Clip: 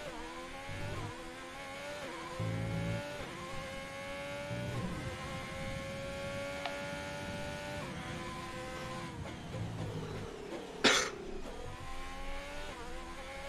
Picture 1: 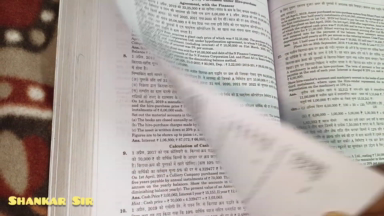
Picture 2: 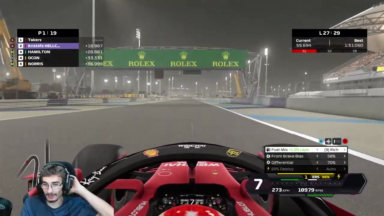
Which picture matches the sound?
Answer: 2